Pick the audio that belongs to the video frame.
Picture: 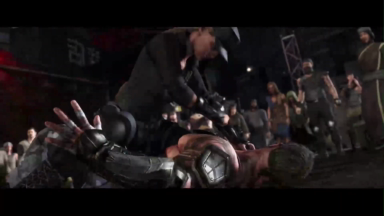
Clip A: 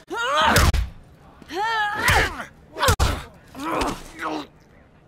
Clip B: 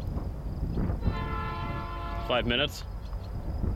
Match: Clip A